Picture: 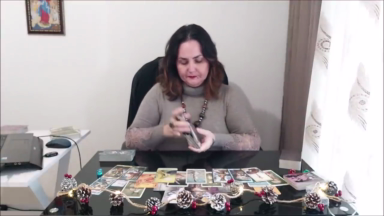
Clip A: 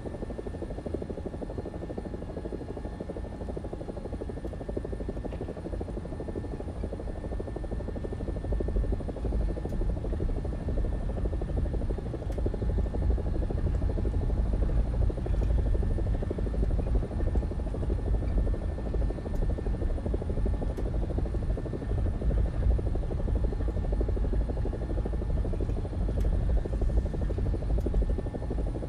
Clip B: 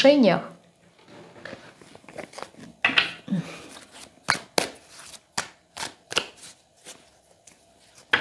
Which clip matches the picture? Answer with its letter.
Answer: B